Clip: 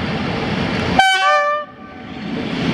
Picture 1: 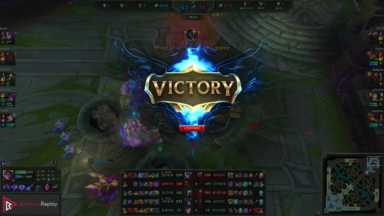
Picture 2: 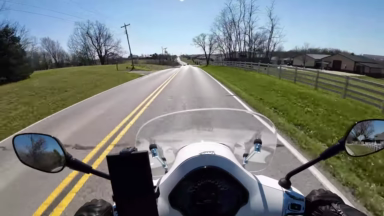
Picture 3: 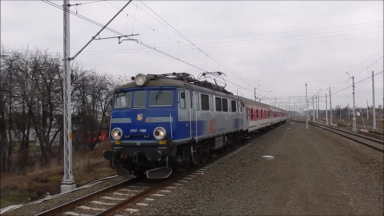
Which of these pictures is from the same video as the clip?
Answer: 3